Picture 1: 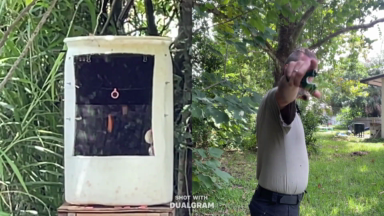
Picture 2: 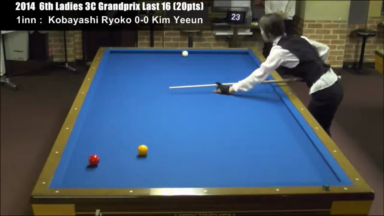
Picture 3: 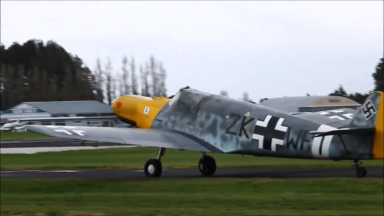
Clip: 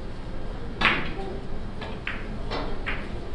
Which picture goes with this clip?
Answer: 2